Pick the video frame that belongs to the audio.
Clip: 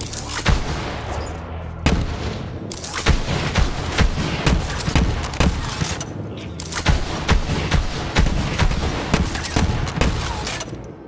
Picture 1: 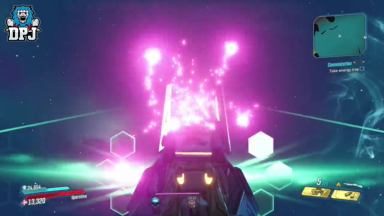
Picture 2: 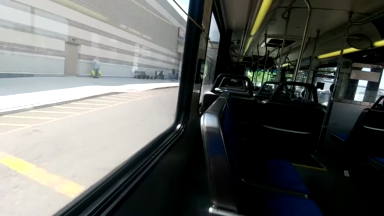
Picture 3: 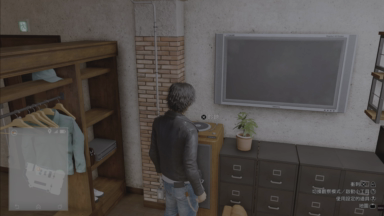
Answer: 1